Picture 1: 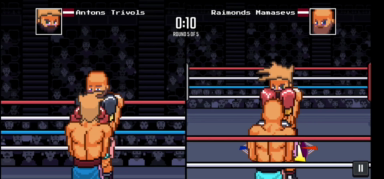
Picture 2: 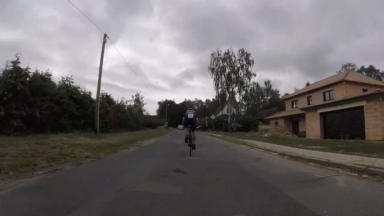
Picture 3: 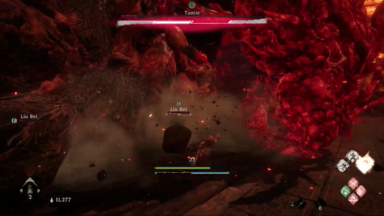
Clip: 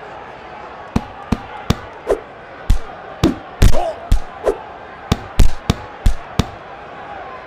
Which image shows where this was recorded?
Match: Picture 1